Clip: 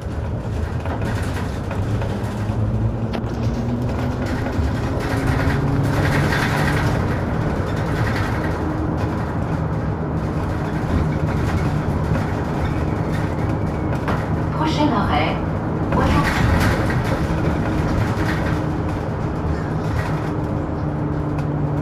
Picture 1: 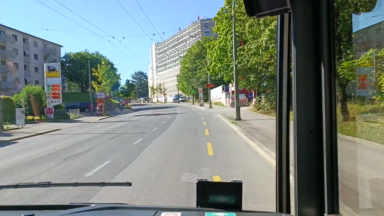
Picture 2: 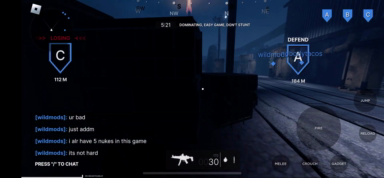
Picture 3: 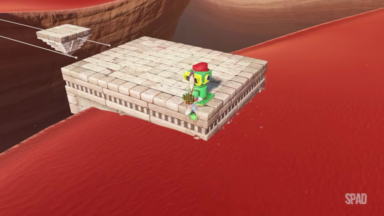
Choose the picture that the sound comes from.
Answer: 1